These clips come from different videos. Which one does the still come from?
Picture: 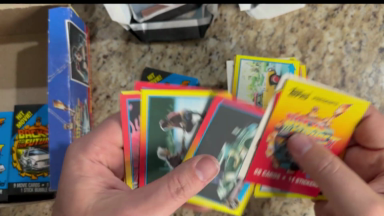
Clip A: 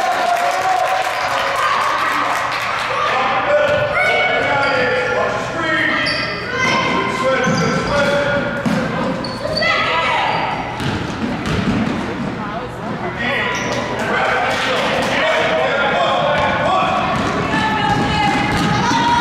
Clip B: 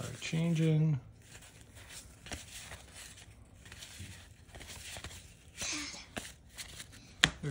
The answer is B